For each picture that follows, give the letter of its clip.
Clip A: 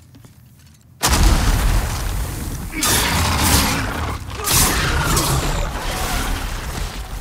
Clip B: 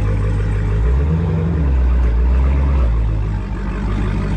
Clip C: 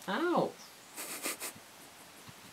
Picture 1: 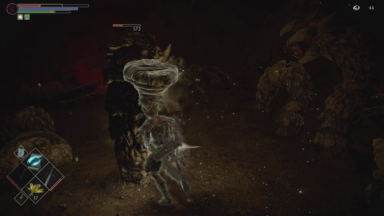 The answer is A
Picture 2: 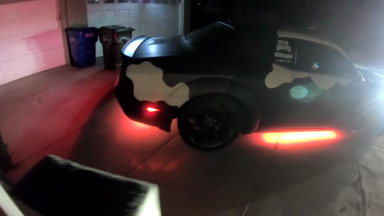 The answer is B